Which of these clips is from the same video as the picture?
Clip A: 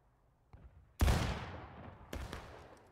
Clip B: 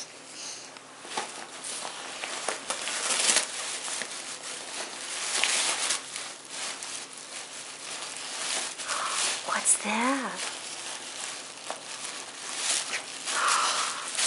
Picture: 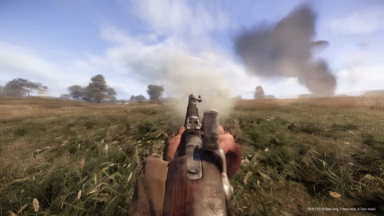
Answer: A